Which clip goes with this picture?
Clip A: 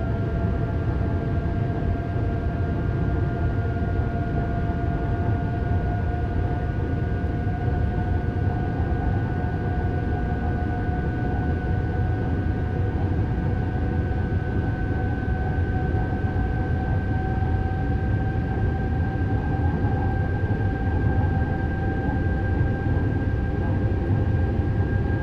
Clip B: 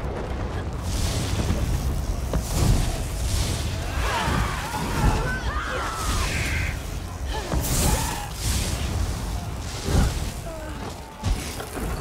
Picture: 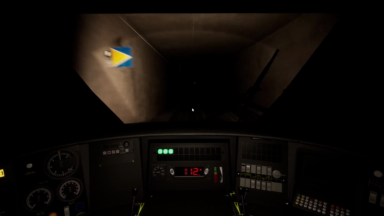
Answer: A